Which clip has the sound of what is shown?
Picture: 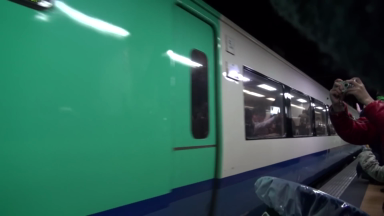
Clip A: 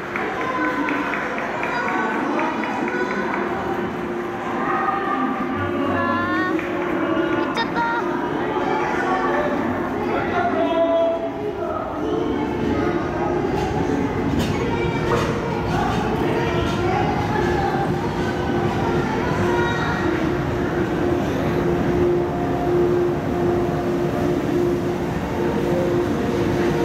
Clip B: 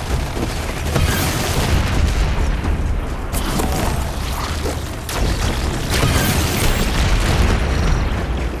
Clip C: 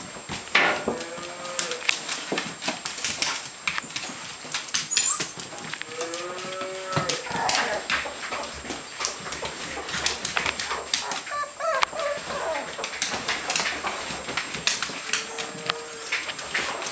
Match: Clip A